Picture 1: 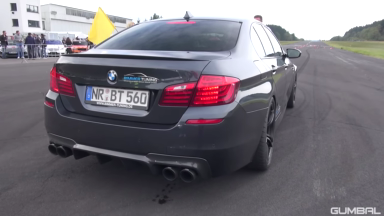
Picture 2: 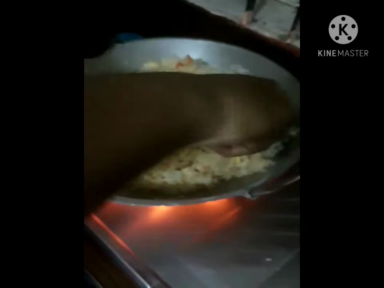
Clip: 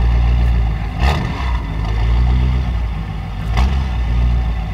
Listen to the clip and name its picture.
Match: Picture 1